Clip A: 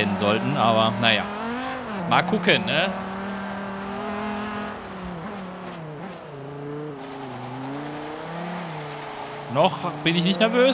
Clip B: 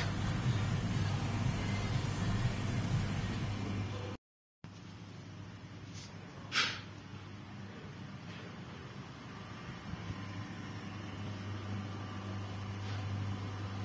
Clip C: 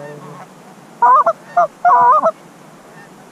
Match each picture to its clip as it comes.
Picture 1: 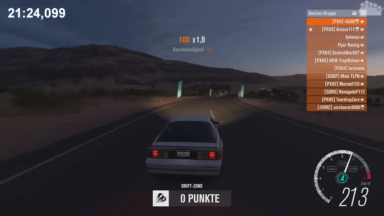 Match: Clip A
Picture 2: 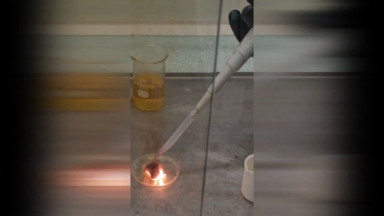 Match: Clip B